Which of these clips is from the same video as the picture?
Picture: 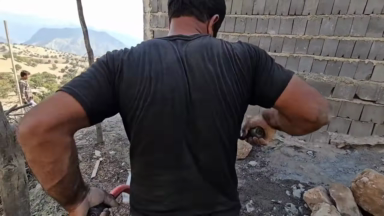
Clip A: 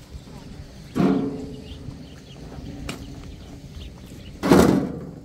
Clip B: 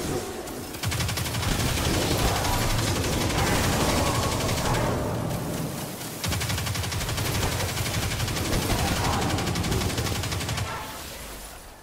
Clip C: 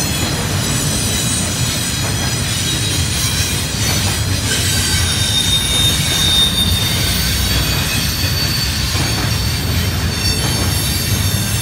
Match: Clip A